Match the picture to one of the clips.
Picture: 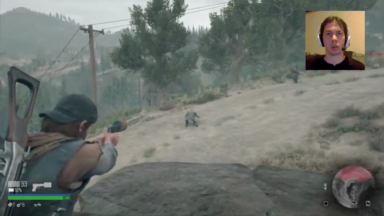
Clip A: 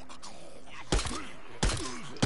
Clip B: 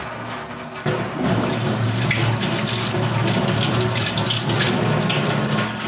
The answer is A